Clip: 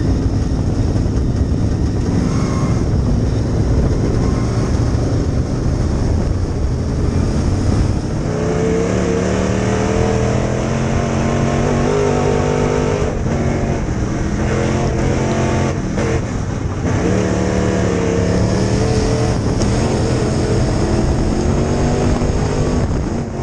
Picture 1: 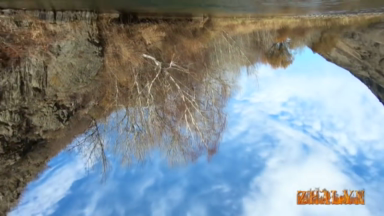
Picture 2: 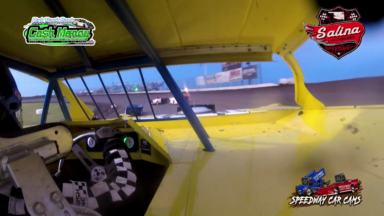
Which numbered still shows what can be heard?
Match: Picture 2